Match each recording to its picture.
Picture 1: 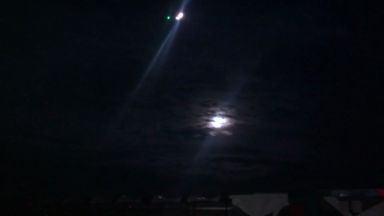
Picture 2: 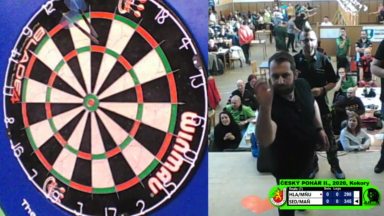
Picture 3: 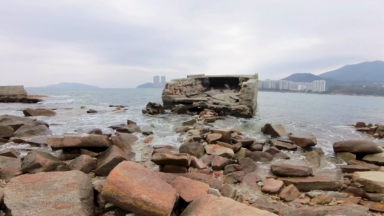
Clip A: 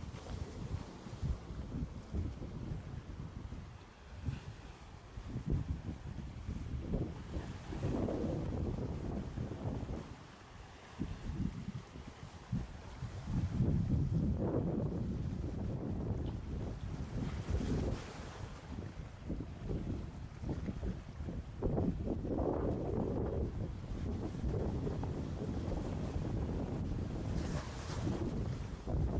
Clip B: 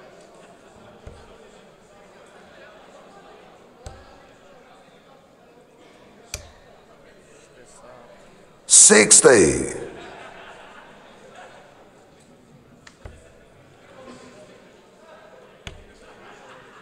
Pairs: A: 3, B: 2